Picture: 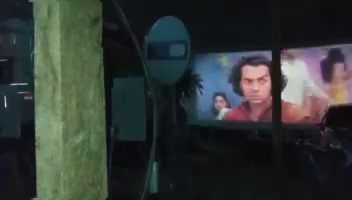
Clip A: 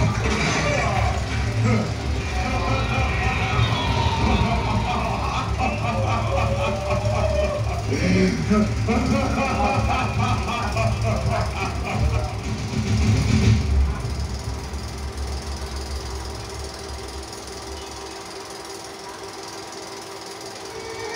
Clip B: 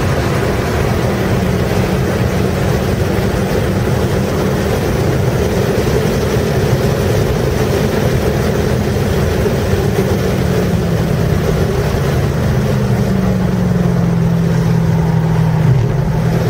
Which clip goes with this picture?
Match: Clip A